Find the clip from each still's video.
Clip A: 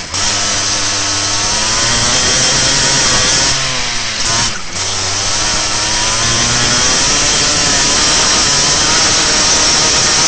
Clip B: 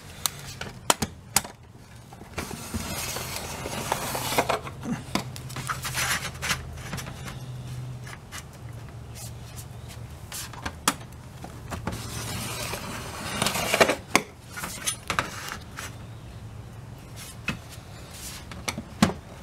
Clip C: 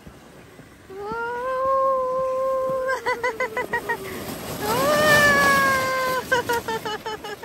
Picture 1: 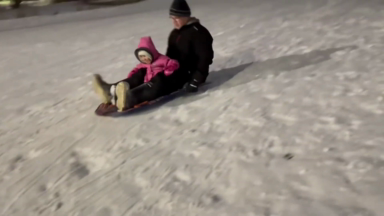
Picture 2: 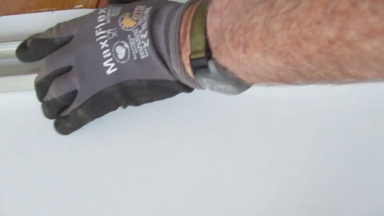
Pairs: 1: C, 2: B